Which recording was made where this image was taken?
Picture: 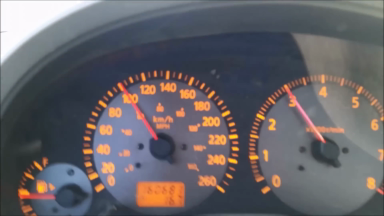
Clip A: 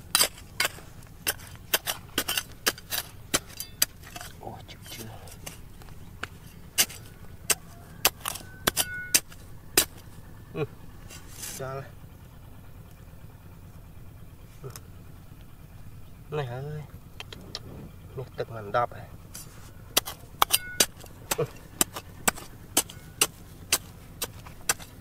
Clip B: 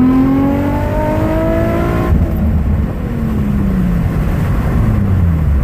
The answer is B